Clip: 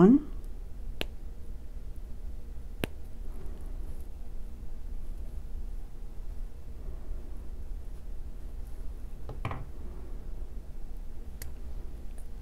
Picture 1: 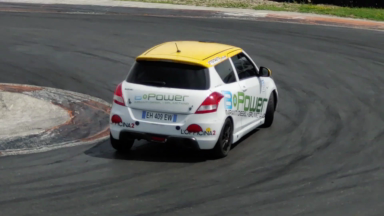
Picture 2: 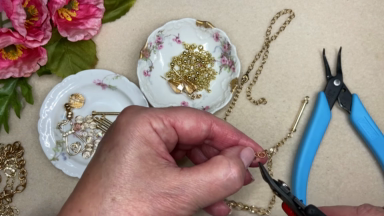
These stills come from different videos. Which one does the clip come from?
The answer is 2